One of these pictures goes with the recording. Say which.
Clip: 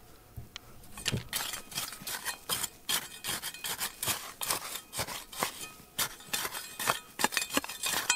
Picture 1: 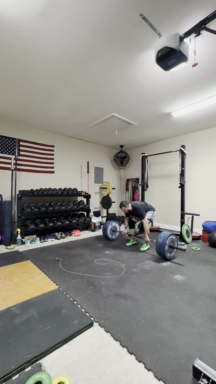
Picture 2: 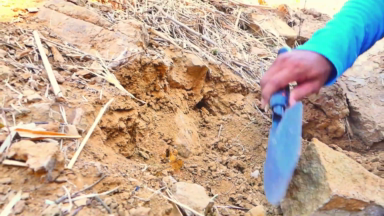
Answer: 2